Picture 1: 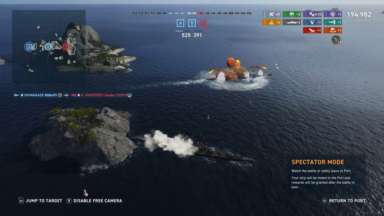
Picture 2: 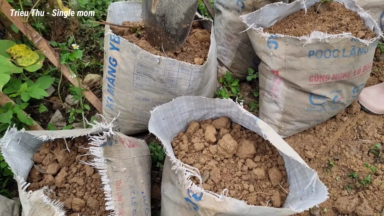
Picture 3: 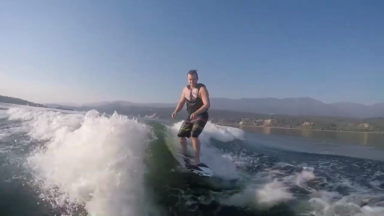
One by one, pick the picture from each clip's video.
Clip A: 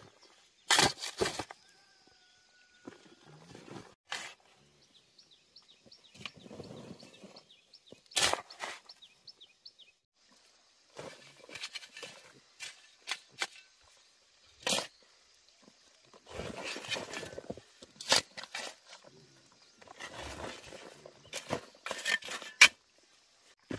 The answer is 2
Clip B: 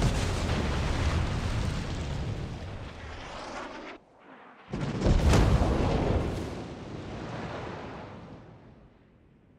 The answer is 1